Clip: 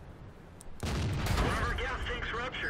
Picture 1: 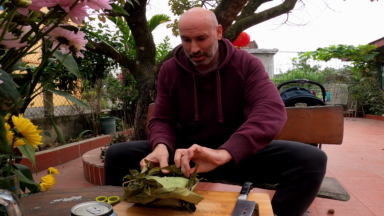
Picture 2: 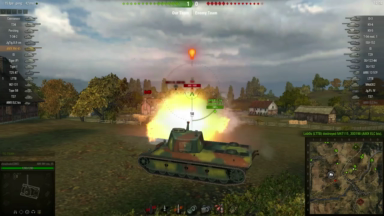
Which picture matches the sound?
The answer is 2